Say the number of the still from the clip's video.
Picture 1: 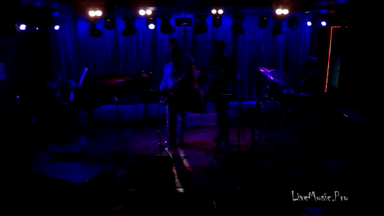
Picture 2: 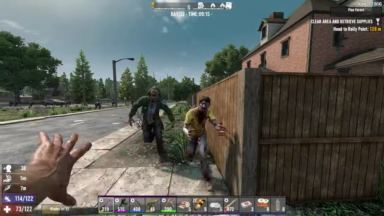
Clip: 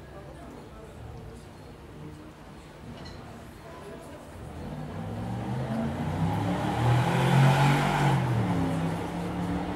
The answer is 1